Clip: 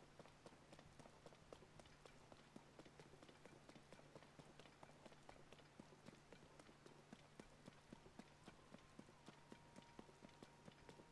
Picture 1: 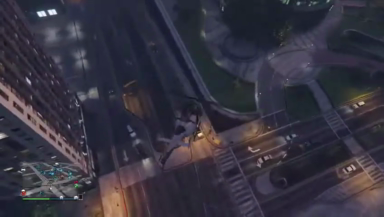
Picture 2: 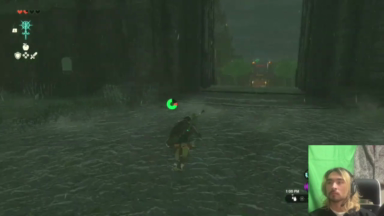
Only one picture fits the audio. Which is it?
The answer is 2